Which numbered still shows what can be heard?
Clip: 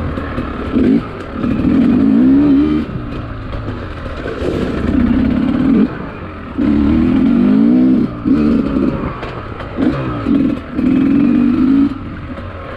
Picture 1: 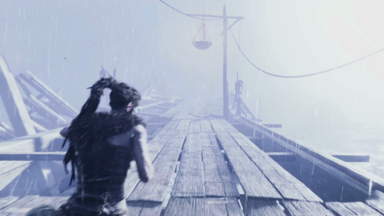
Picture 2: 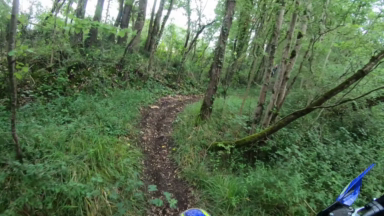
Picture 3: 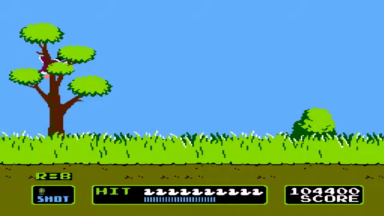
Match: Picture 2